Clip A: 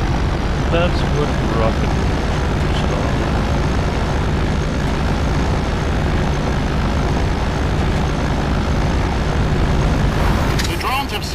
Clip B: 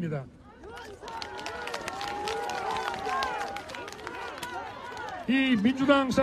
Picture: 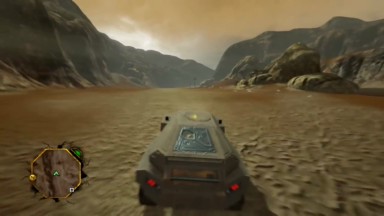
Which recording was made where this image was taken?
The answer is A